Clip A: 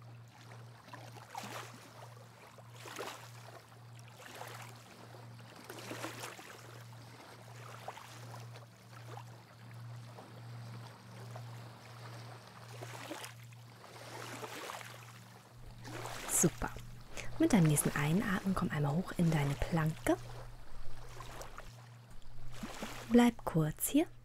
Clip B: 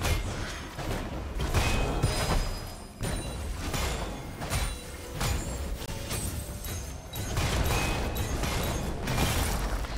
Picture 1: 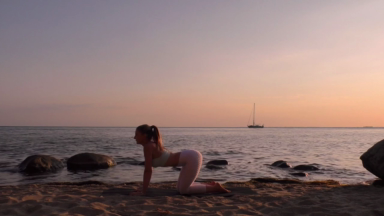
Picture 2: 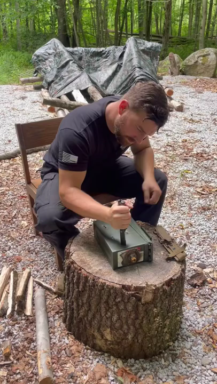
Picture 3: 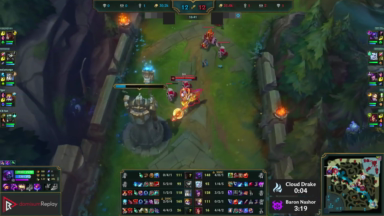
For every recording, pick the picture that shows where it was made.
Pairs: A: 1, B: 3